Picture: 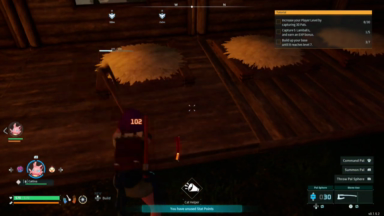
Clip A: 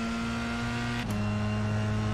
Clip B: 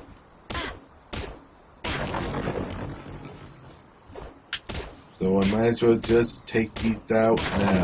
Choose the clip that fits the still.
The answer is B